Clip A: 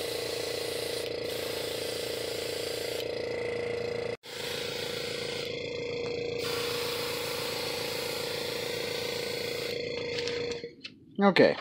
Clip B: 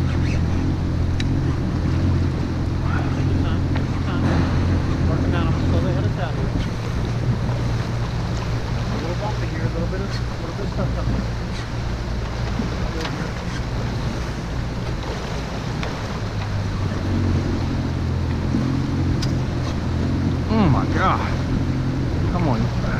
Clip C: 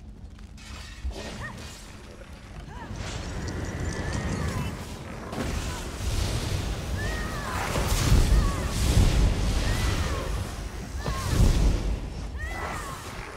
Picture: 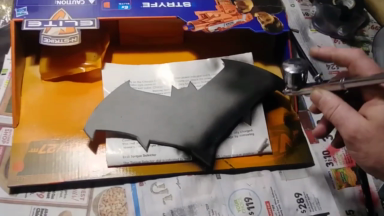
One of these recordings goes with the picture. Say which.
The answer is A